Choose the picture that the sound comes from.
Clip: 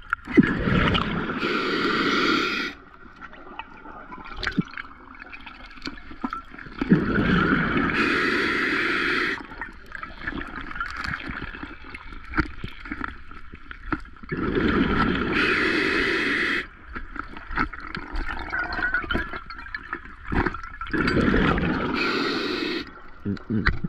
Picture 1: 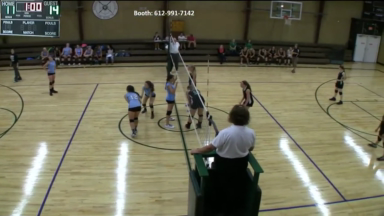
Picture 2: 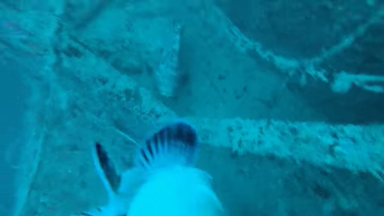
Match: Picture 2